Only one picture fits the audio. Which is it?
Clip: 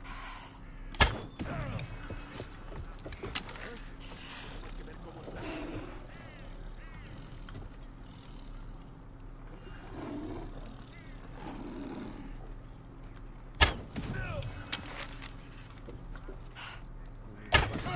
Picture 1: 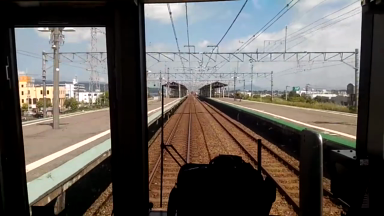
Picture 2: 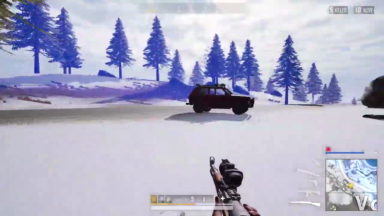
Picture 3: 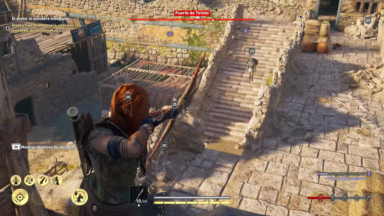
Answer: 3